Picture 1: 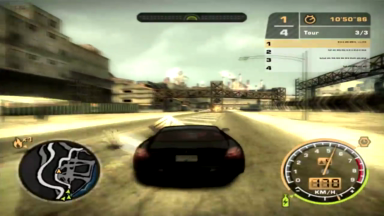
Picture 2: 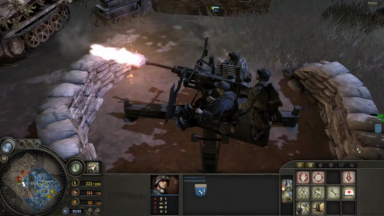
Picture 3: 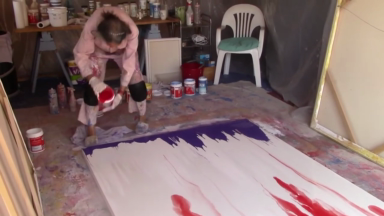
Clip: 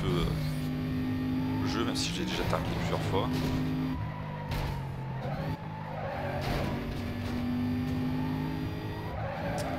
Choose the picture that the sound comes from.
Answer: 1